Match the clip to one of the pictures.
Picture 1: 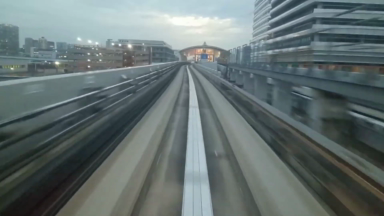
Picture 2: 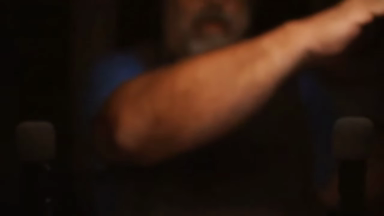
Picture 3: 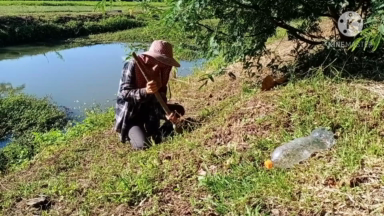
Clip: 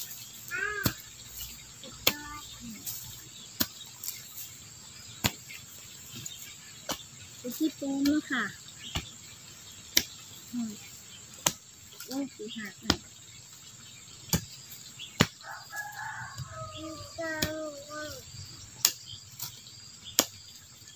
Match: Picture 3